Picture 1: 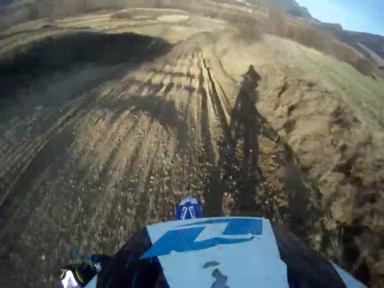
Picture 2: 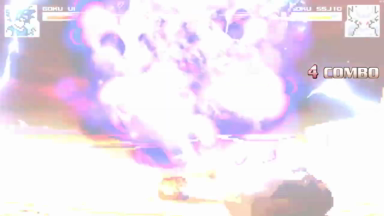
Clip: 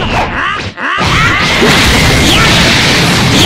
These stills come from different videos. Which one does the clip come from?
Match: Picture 2